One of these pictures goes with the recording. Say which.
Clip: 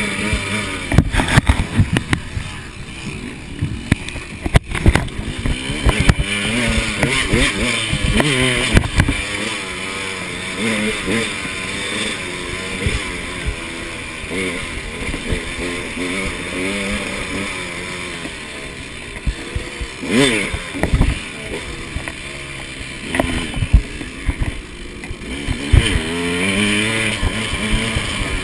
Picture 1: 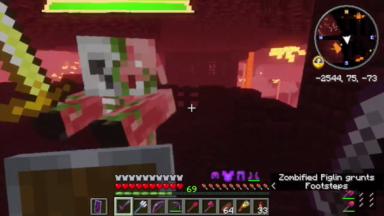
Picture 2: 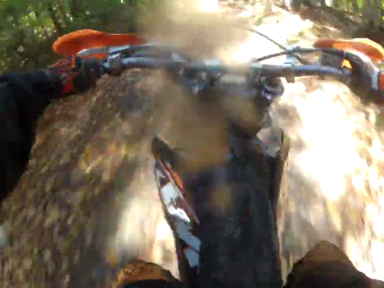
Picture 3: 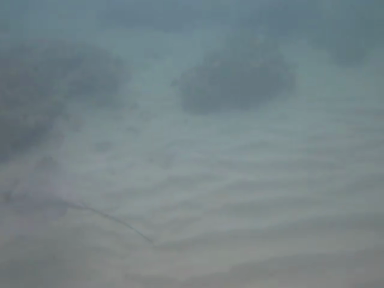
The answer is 2